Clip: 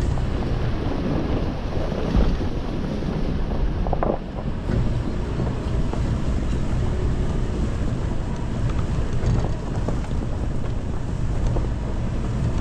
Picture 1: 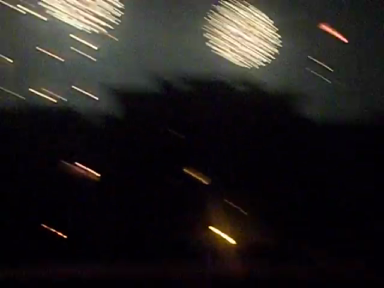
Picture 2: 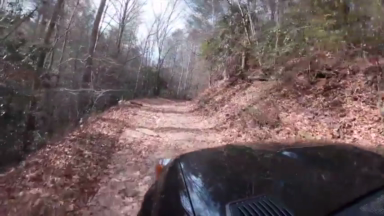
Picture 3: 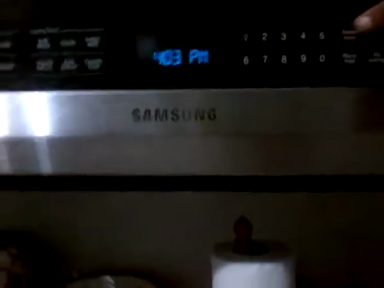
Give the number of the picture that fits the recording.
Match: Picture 2